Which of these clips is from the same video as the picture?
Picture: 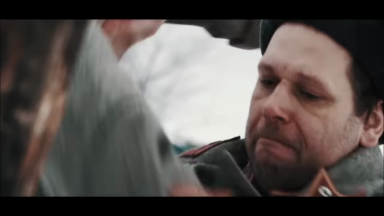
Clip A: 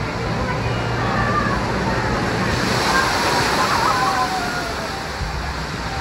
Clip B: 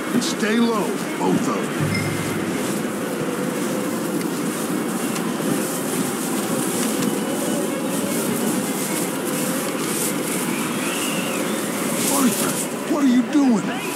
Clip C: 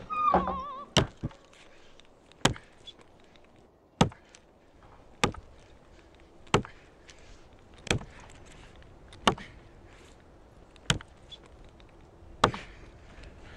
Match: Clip C